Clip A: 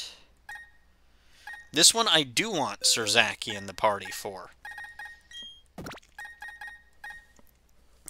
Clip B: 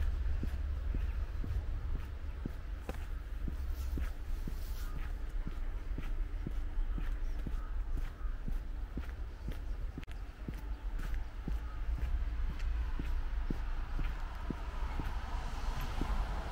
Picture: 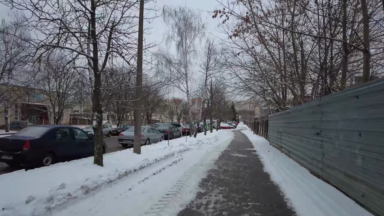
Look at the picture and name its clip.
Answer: B